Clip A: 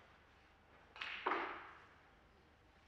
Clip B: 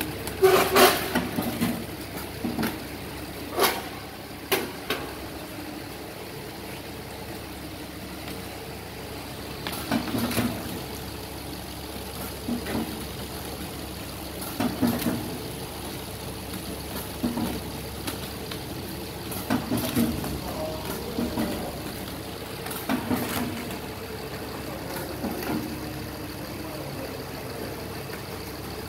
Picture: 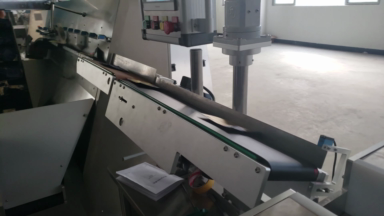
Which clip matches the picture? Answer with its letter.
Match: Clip B